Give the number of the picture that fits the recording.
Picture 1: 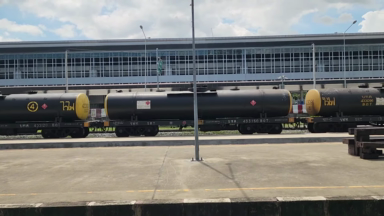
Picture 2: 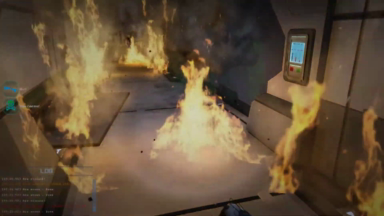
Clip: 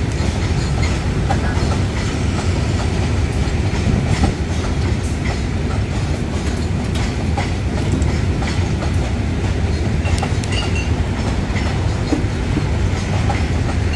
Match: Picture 1